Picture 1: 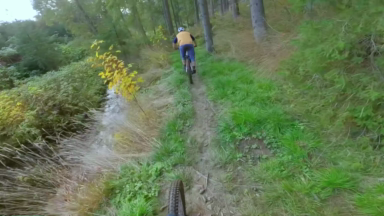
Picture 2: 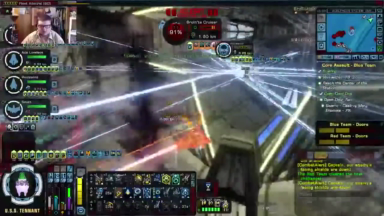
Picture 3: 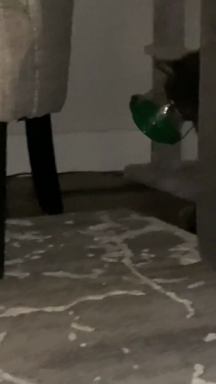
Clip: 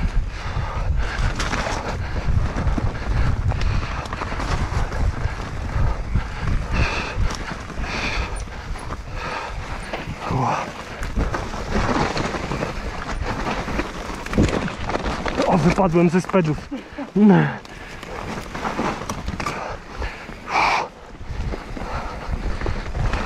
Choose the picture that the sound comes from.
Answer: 1